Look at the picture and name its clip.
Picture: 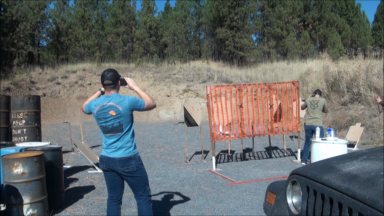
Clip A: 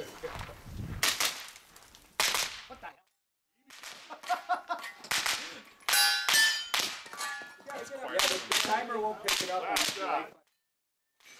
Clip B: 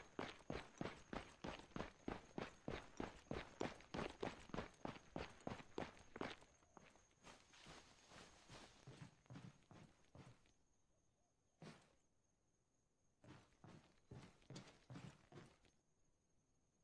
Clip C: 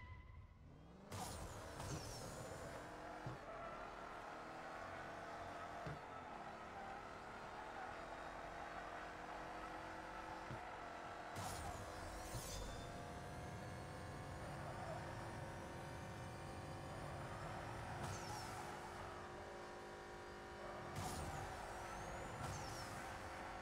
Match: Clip A